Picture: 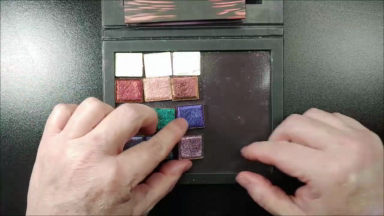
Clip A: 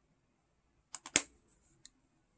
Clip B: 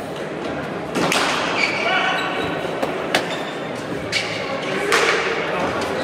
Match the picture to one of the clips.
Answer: A